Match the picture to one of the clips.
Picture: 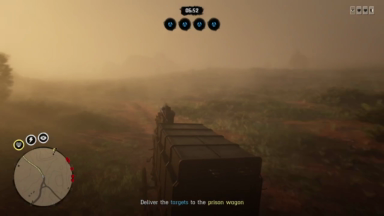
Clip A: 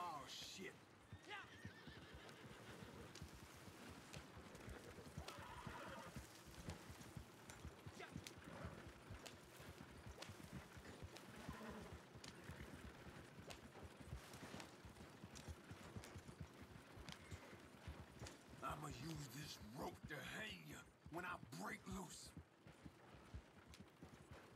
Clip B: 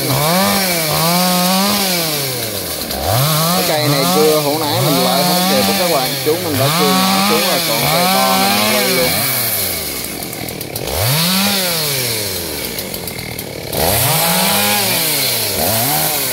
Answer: A